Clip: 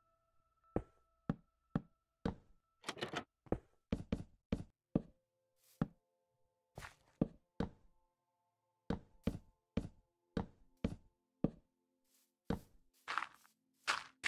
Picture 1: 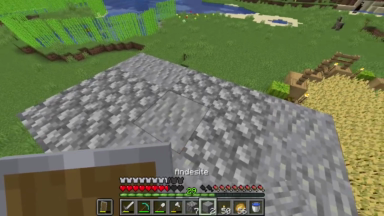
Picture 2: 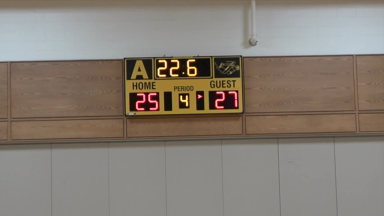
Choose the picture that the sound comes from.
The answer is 1